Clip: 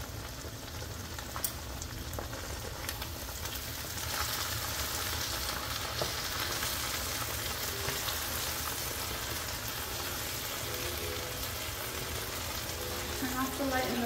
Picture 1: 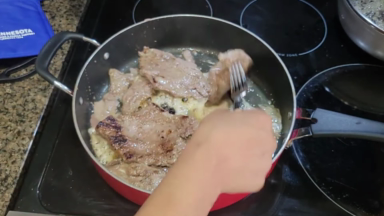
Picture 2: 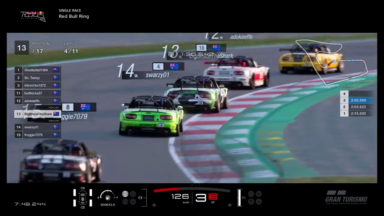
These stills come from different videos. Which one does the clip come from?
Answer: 1